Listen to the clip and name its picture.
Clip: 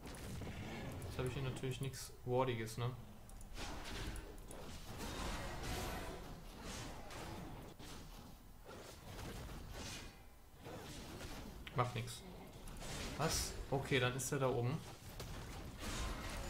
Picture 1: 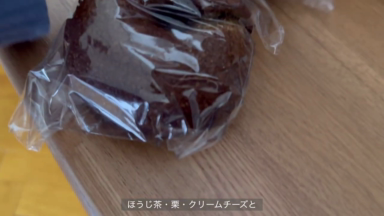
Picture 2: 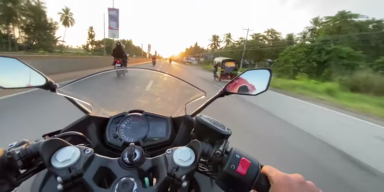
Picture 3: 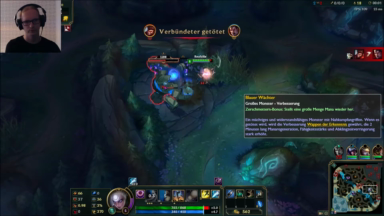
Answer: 3